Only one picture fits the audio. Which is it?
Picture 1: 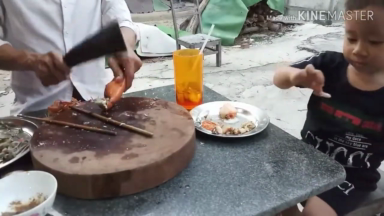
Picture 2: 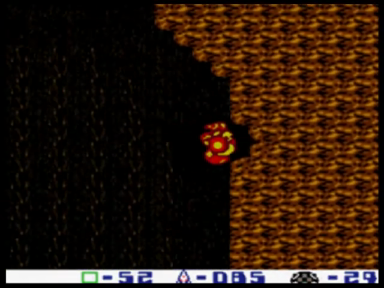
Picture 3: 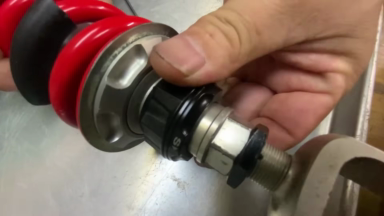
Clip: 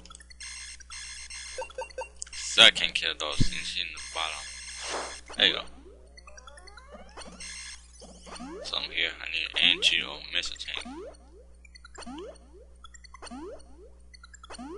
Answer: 2